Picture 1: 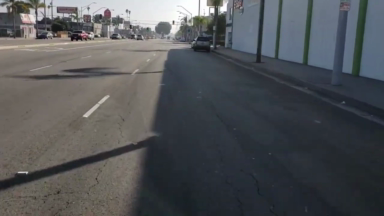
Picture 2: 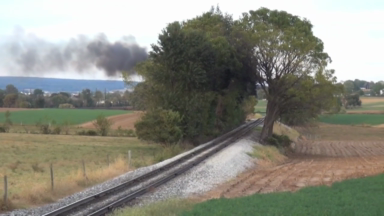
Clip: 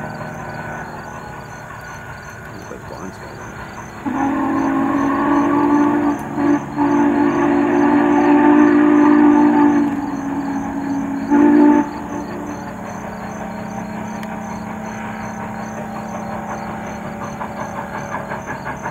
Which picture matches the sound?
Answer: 2